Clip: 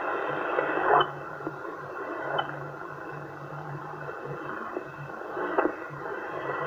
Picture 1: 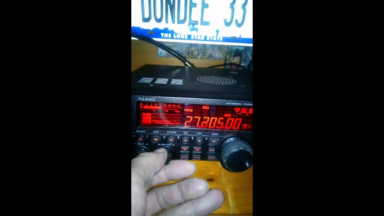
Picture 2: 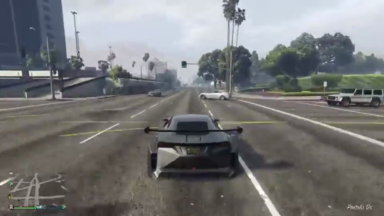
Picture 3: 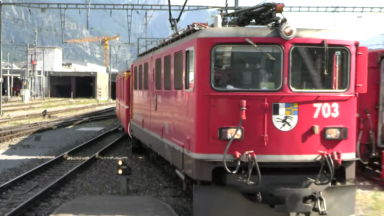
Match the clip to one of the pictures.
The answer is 1